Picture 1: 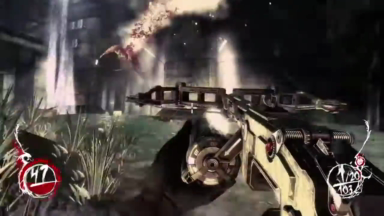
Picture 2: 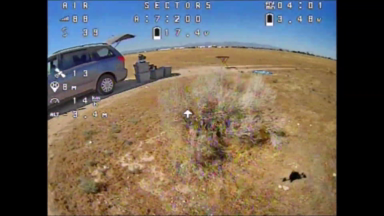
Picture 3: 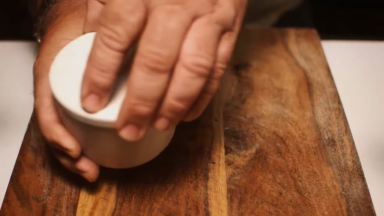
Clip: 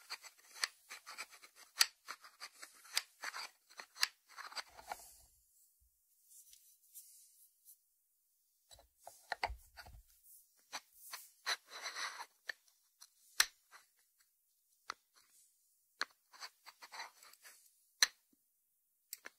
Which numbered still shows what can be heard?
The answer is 3